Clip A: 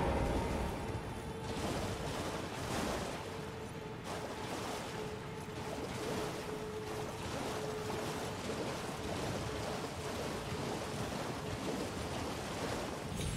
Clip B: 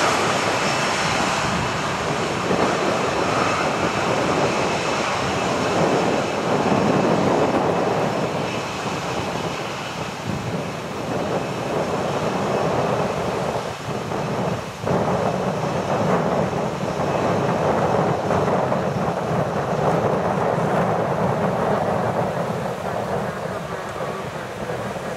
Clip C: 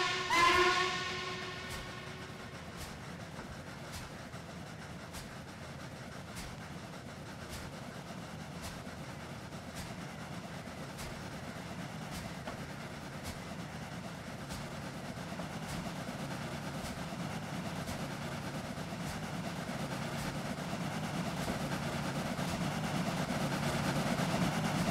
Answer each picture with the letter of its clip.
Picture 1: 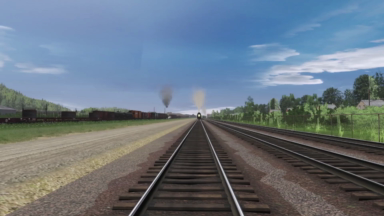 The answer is C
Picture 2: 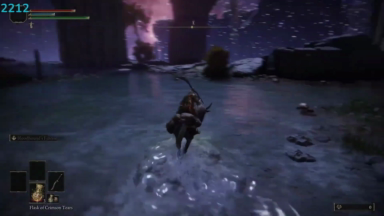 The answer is A